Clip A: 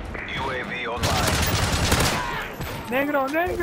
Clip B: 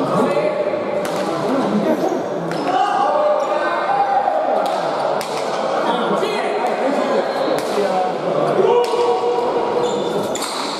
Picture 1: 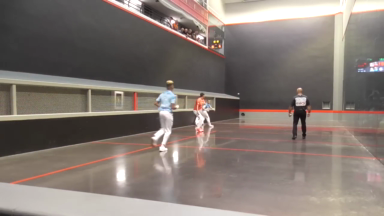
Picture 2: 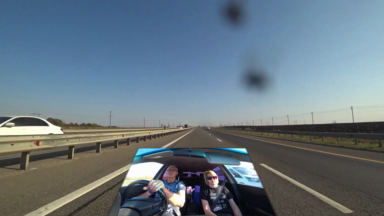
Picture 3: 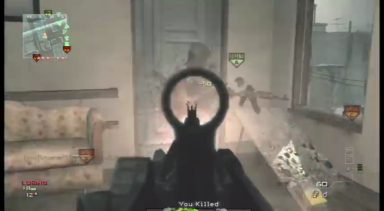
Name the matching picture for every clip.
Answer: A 3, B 1